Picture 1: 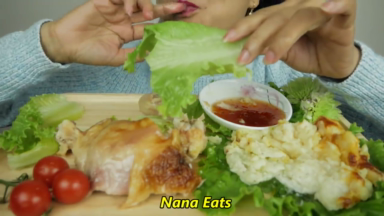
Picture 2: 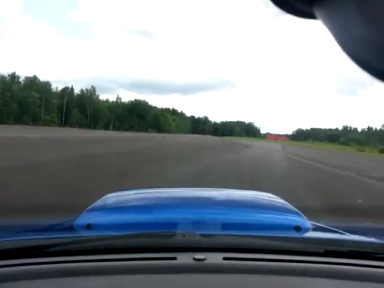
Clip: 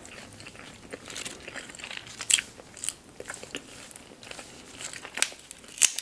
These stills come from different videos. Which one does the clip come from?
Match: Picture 1